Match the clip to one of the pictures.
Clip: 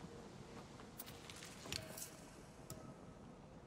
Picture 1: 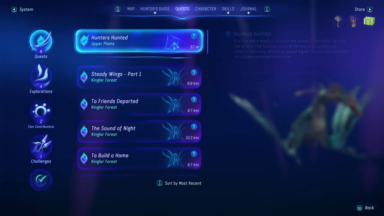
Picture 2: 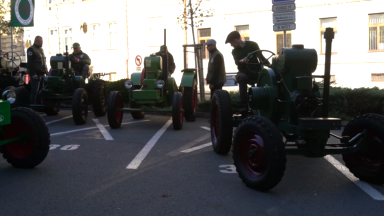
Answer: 1